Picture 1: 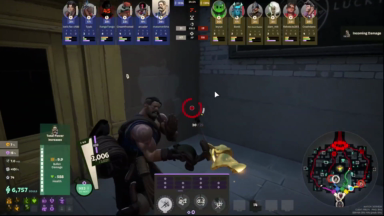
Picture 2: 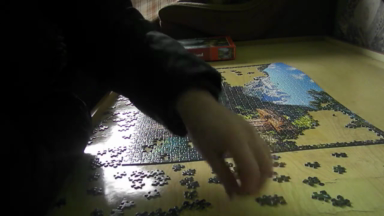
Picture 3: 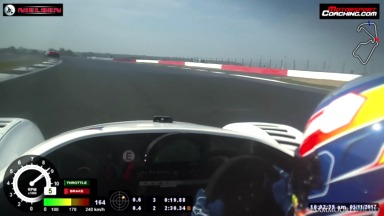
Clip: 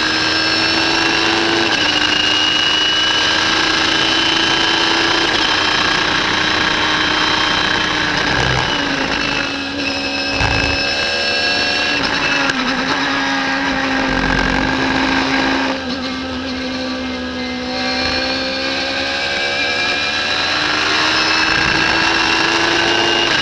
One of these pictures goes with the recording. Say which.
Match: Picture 3